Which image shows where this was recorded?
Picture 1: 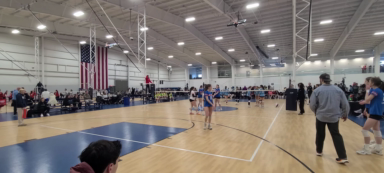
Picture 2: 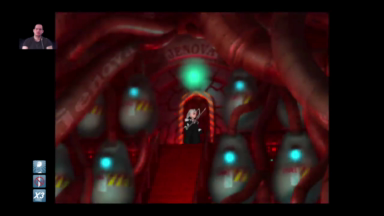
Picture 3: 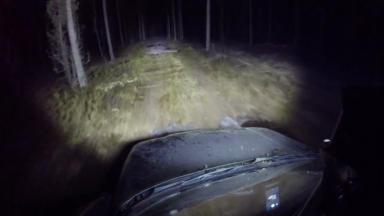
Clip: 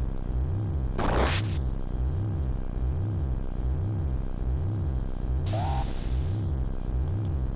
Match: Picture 2